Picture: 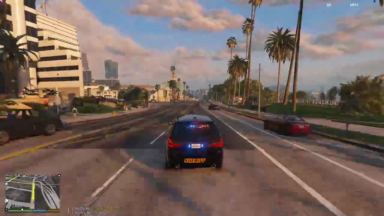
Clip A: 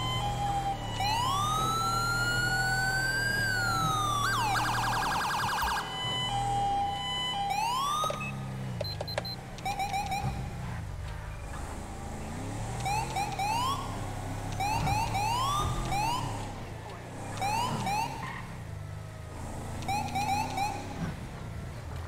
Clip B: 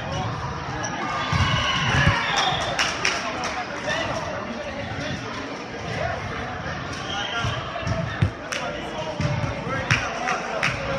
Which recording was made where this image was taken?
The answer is A